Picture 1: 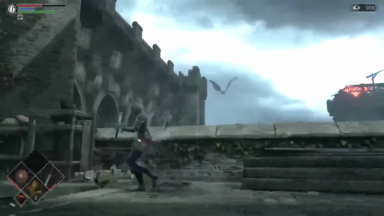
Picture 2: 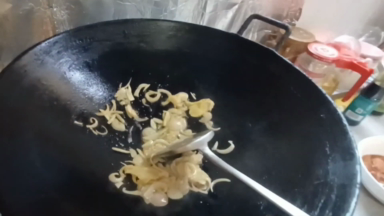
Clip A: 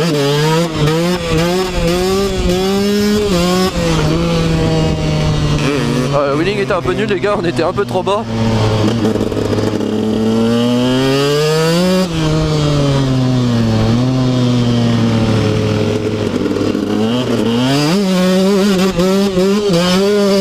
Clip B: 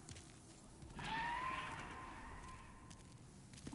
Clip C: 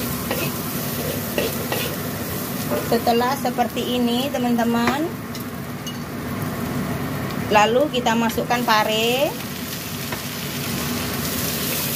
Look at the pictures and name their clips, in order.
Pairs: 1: B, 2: C